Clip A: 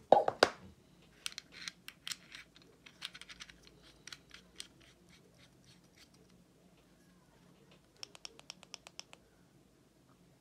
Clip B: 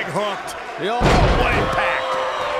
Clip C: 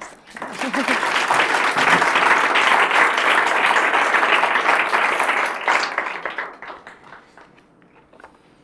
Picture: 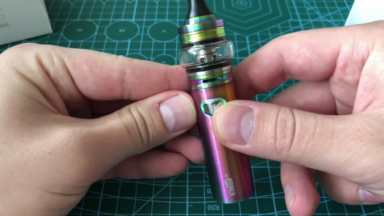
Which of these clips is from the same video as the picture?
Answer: A